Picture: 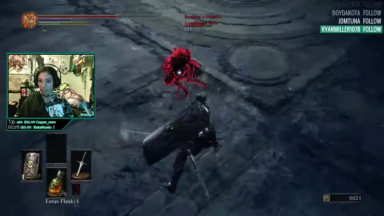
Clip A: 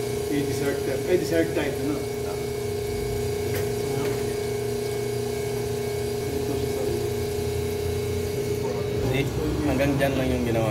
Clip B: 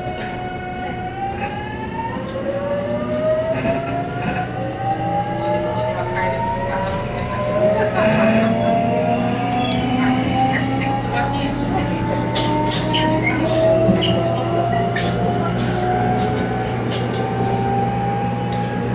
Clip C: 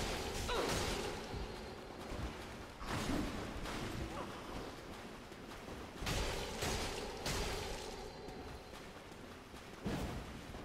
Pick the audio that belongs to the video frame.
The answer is C